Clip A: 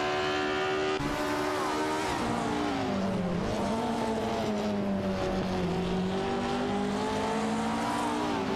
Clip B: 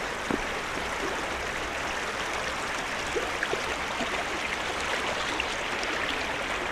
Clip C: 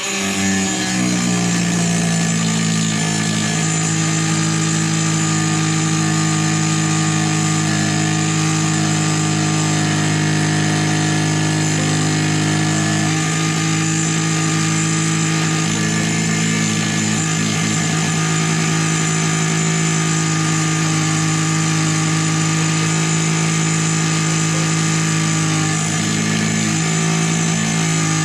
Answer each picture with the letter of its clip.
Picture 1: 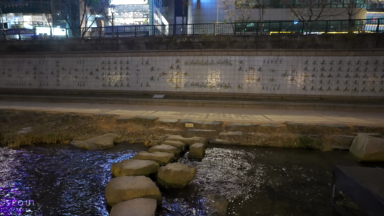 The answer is B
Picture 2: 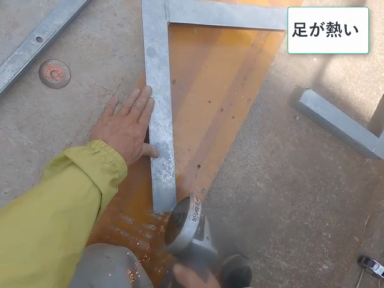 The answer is C